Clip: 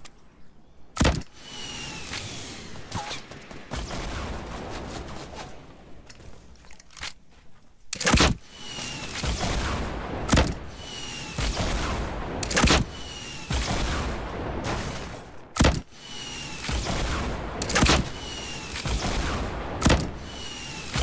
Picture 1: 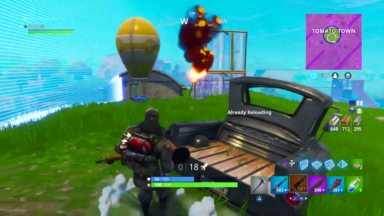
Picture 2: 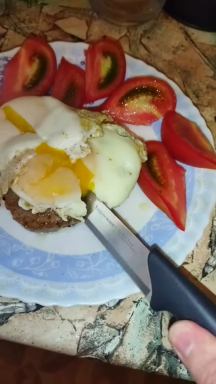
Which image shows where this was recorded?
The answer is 1